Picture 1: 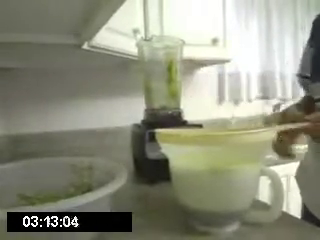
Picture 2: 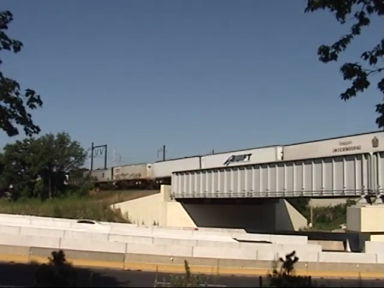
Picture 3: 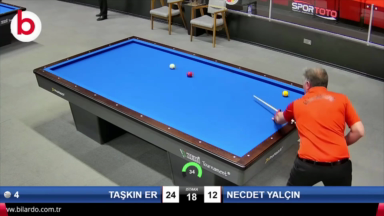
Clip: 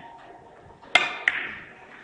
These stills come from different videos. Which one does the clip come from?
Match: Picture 3